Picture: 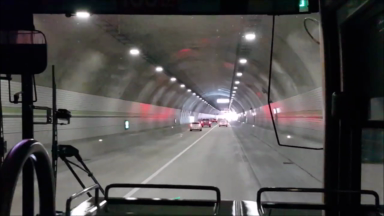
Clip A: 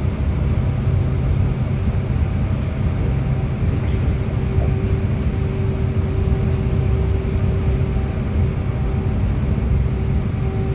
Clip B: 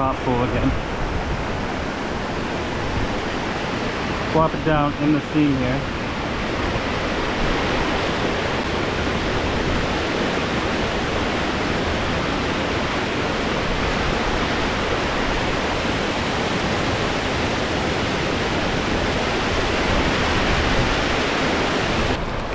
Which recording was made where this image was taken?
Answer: A